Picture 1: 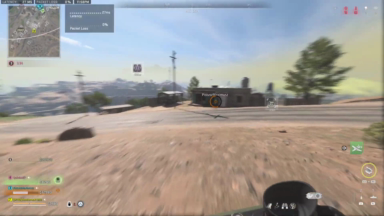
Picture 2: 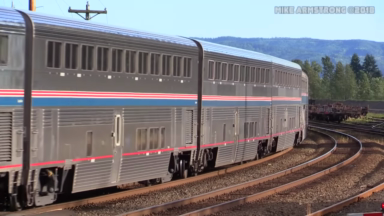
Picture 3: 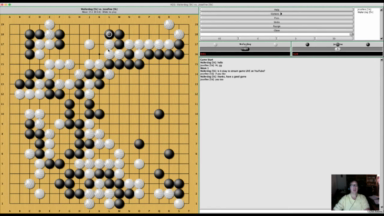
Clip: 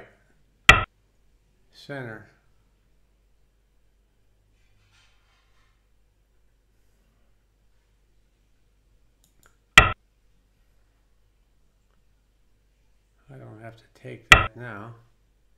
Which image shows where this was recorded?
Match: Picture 3